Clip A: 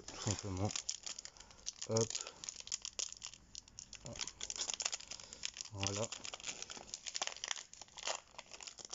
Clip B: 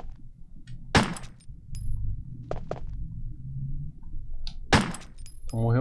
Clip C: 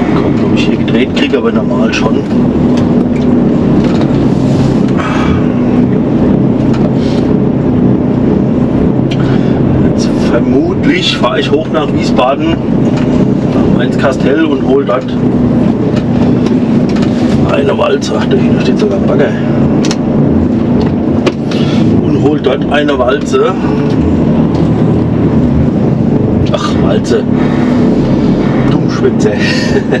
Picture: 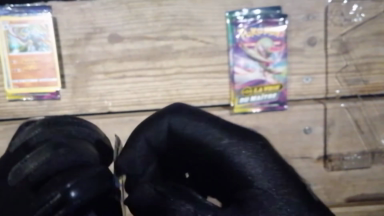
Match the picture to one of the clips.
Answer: A